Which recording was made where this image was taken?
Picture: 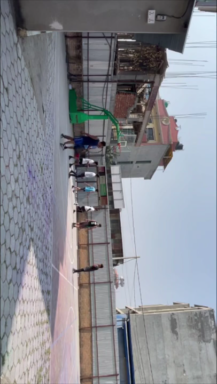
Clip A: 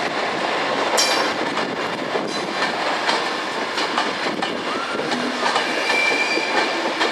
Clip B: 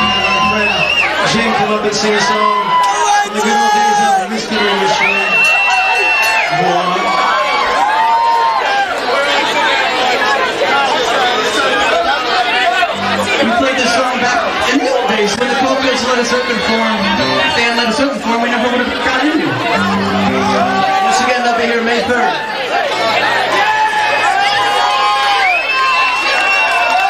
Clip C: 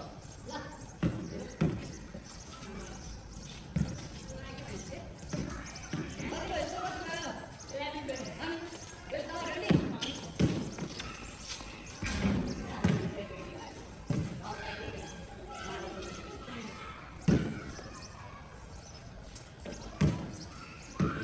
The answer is C